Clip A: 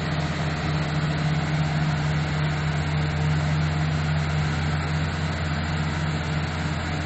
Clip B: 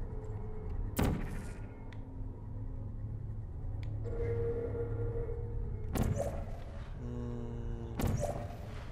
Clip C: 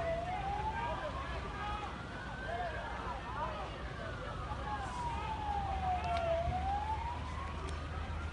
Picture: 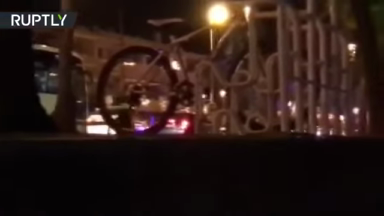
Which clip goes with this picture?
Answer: C